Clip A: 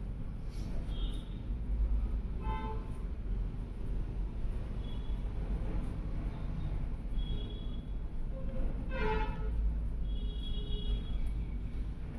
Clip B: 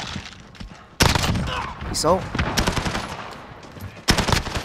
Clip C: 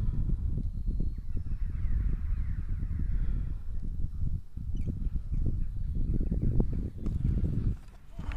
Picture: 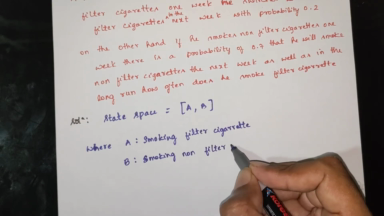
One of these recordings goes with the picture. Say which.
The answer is A